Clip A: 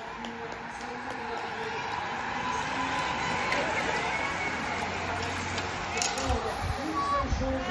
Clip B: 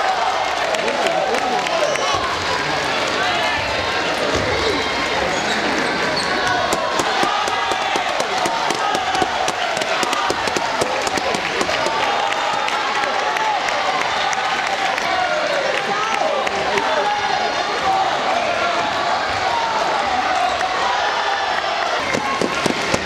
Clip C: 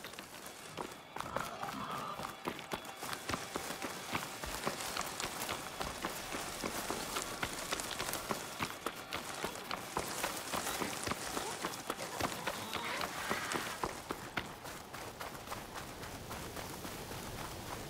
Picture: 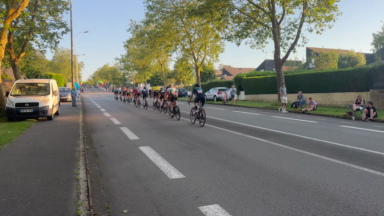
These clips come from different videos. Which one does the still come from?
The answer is A